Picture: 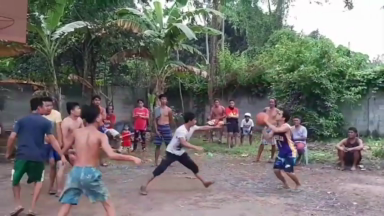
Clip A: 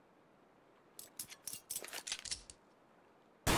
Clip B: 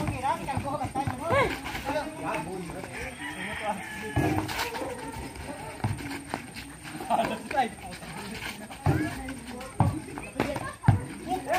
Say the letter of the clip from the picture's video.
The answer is B